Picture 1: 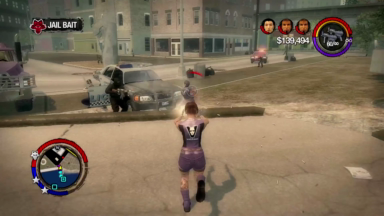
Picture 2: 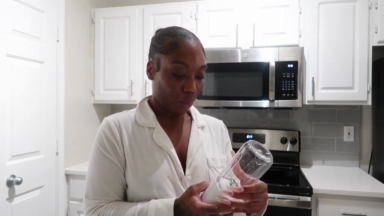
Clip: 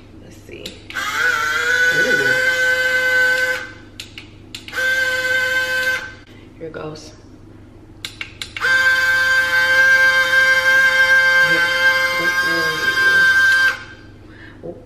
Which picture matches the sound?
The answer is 2